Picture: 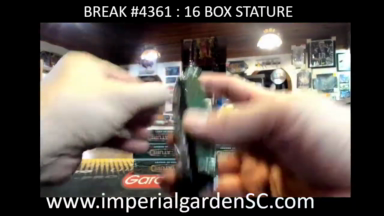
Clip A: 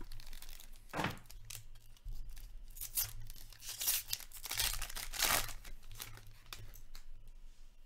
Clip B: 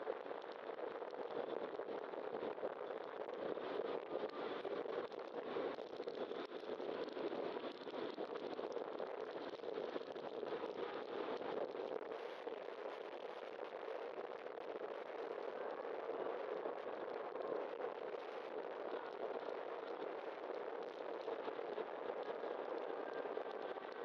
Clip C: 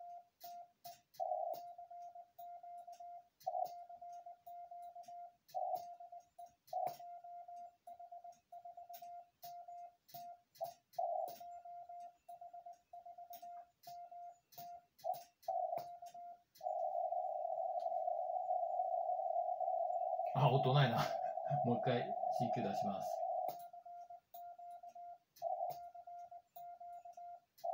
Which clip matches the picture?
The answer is A